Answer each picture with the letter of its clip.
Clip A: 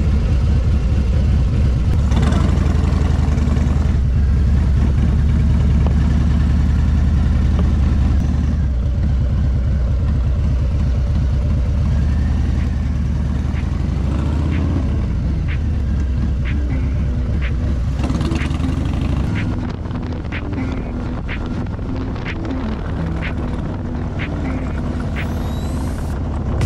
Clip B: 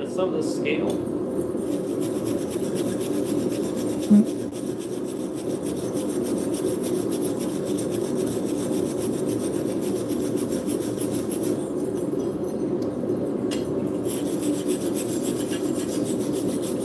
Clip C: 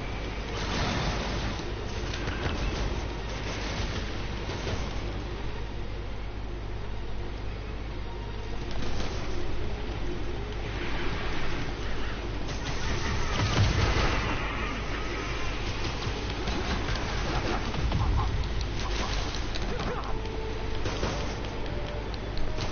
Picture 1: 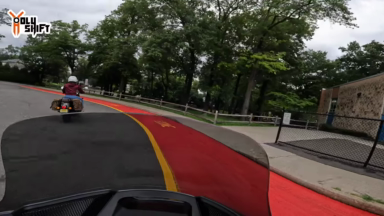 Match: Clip A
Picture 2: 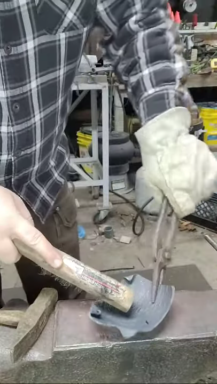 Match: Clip B